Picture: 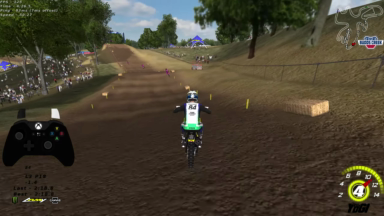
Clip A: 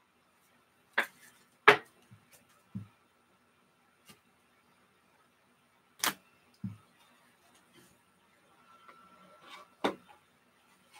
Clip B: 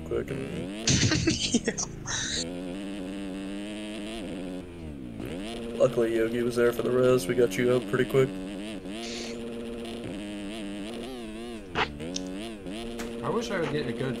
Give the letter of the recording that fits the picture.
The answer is B